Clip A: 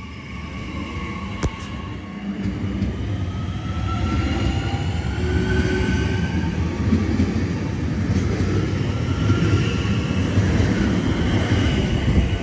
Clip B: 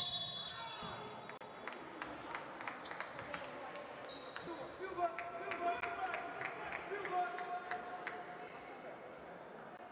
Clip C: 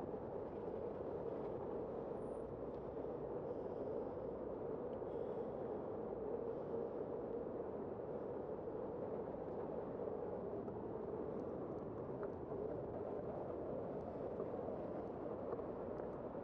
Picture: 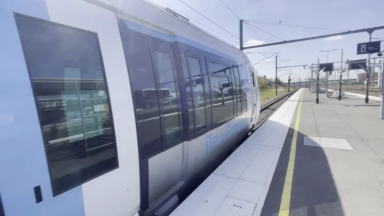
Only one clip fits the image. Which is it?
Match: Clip A